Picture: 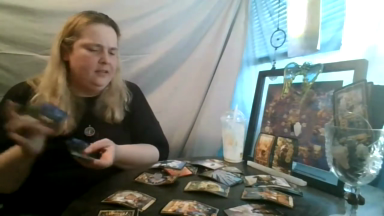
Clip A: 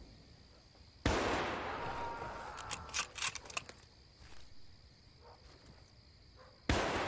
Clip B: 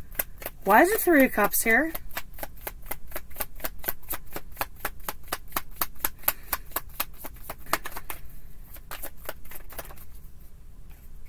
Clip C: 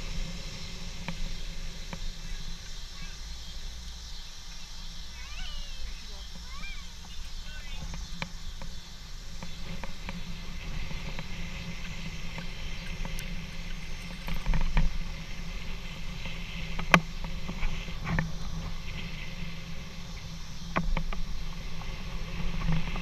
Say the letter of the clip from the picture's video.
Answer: B